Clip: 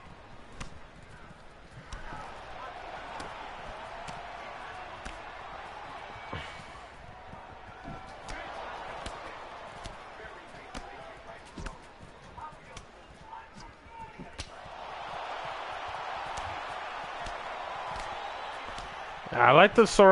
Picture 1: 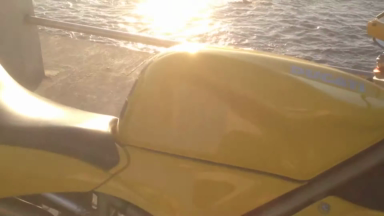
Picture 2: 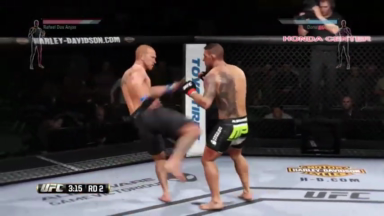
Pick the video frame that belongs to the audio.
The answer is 2